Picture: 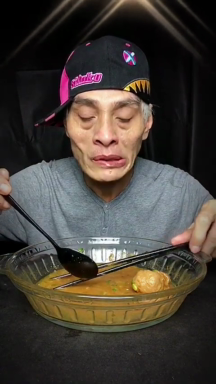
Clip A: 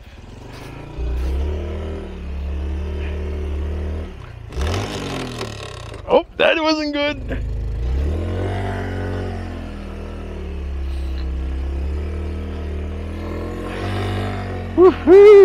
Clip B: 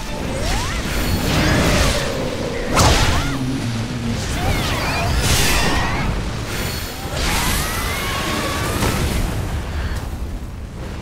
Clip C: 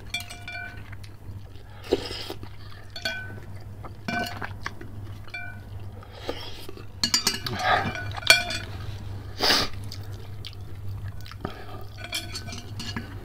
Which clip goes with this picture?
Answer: C